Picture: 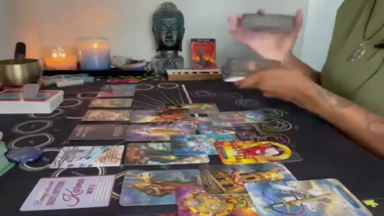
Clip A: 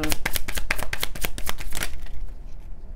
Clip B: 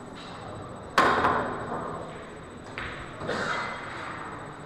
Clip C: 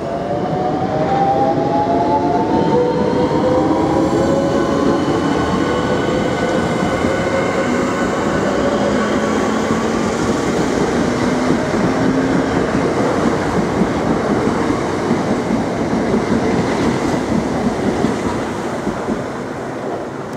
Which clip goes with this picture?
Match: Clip A